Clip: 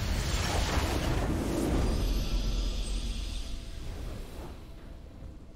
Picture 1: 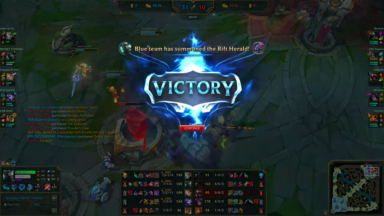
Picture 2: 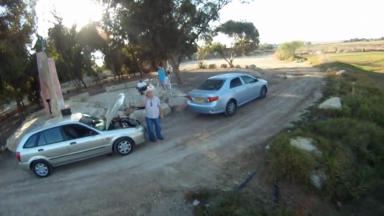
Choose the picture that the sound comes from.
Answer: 1